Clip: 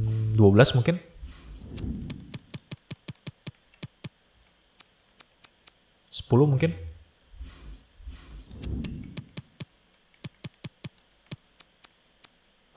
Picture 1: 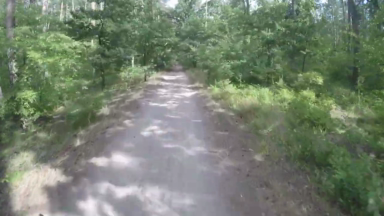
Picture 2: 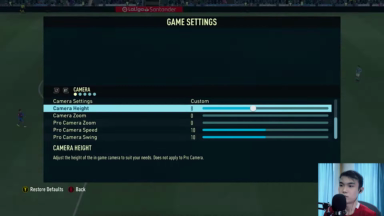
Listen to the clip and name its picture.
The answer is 2